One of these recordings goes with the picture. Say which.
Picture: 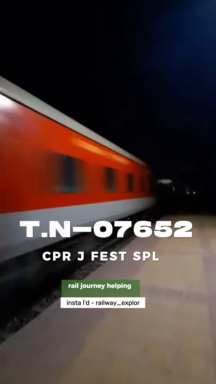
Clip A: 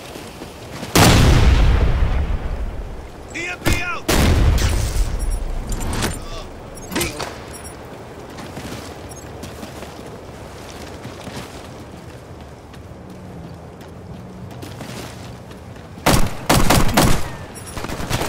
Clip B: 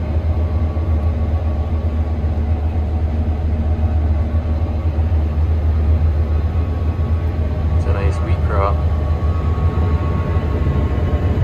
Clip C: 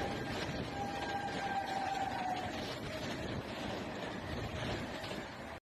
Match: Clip C